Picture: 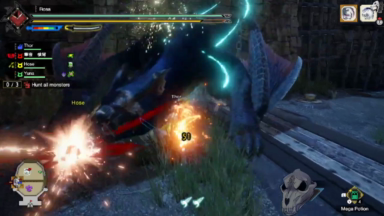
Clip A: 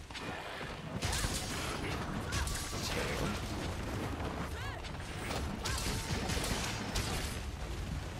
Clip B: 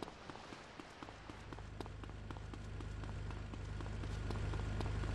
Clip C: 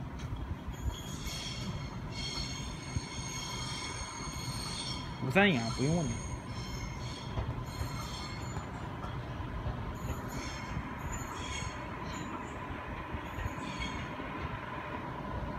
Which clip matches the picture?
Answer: A